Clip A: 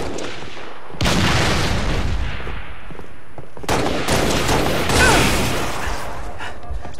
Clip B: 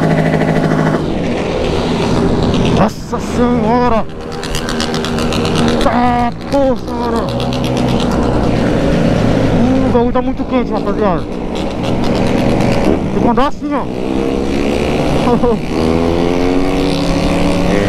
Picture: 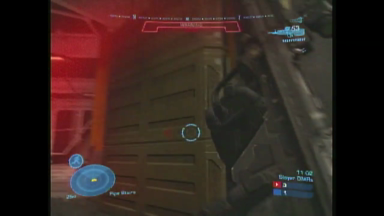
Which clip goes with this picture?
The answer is A